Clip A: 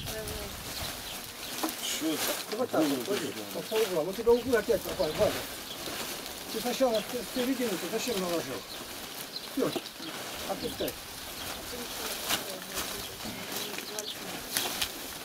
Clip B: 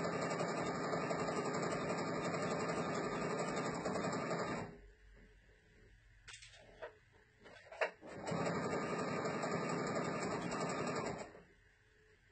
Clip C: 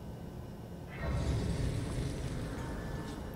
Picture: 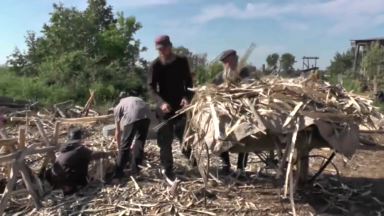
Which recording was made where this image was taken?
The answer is A